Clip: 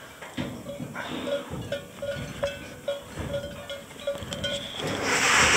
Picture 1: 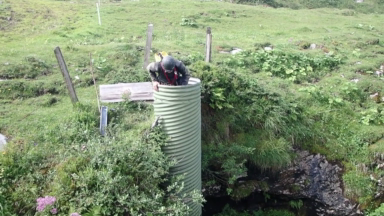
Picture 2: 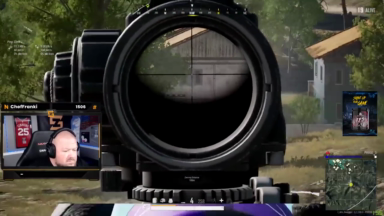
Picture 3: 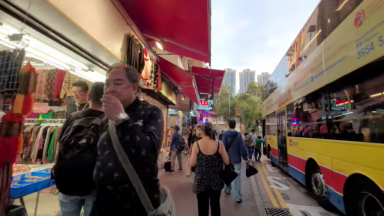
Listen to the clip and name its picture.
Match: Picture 1